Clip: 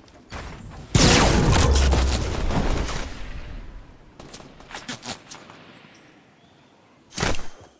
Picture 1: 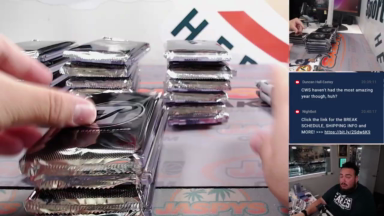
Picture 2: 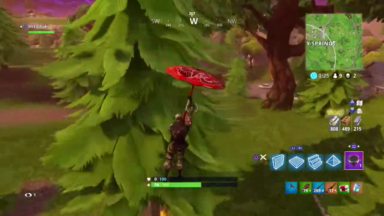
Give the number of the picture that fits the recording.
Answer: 2